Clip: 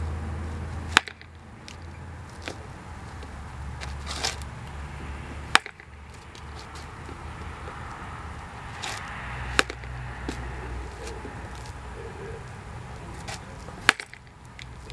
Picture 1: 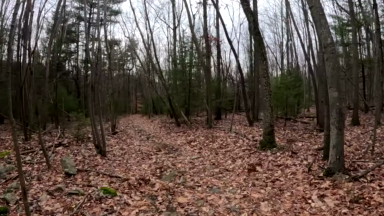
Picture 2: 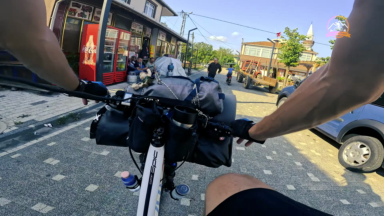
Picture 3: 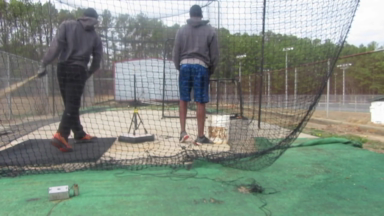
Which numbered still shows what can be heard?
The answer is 3